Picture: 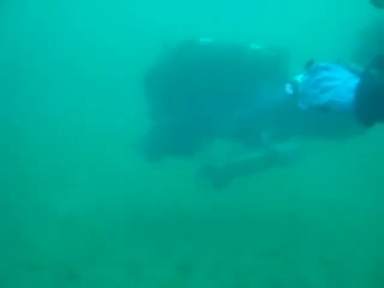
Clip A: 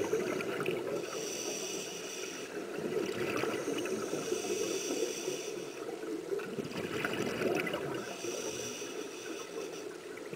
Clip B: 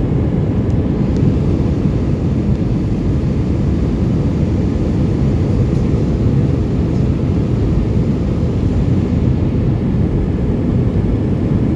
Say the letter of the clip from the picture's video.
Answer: A